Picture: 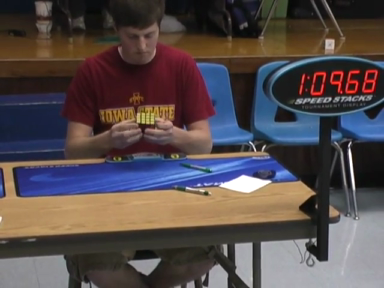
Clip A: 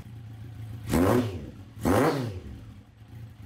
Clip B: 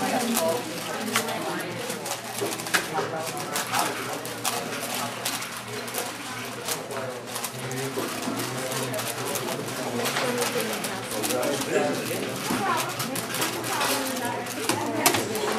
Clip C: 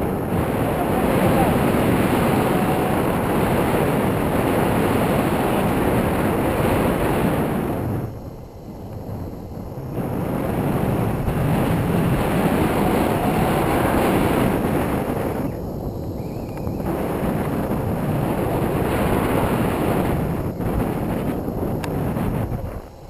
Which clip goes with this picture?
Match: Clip B